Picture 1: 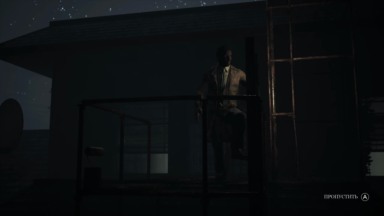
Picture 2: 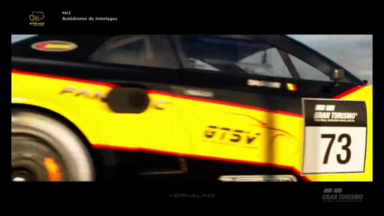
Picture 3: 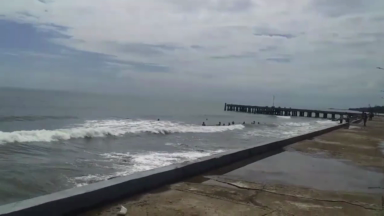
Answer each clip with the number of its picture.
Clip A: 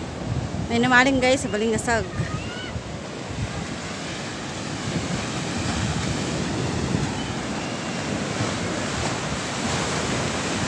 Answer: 3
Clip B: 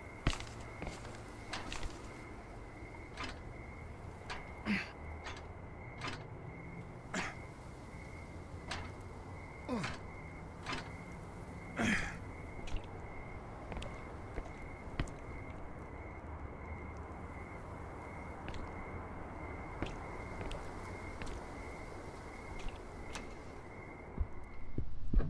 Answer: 1